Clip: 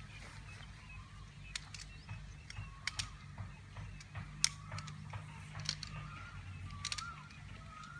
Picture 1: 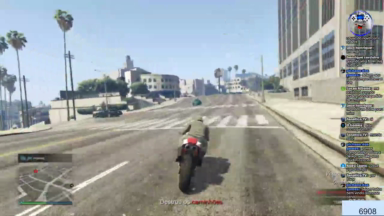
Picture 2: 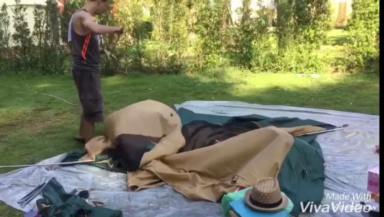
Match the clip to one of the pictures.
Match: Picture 2